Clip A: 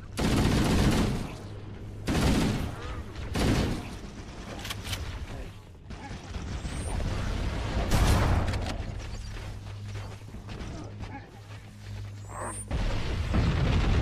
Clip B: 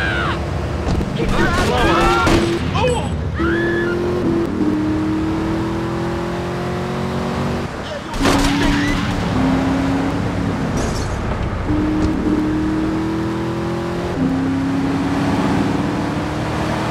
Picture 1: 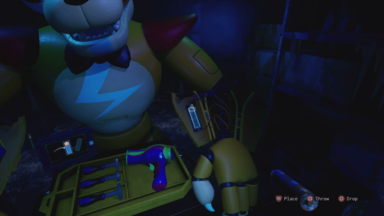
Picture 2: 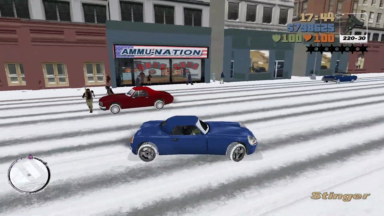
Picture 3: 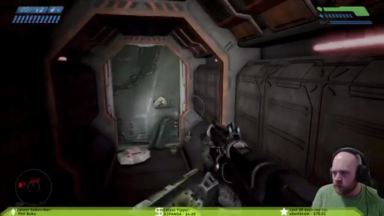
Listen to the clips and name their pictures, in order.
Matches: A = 3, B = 2